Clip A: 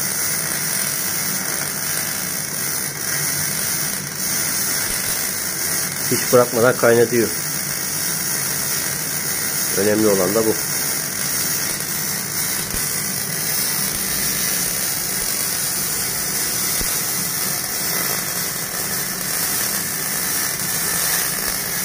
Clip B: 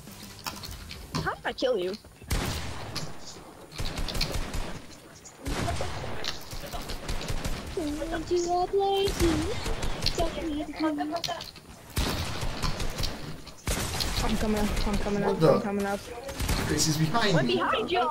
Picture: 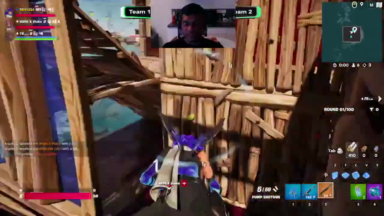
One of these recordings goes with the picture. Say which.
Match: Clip B